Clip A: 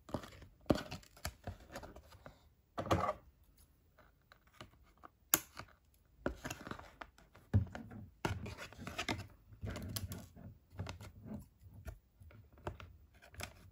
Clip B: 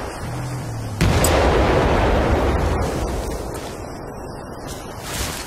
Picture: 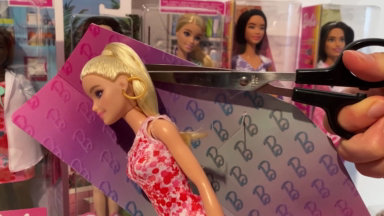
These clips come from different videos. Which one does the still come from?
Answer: A